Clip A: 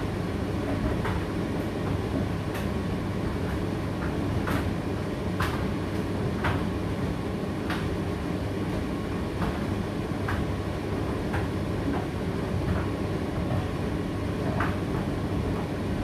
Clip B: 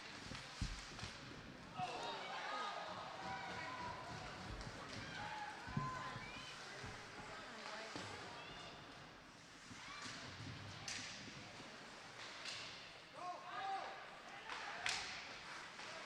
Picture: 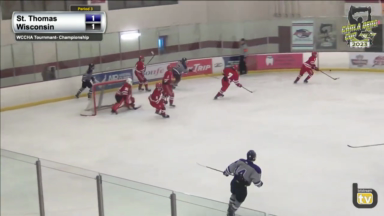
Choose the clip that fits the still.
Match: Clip B